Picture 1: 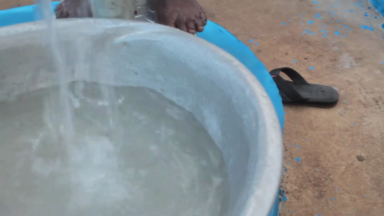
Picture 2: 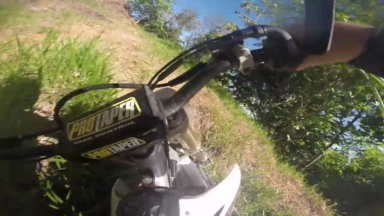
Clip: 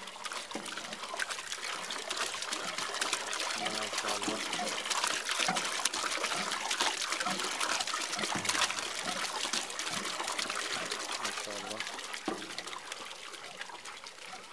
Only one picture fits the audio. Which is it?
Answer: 1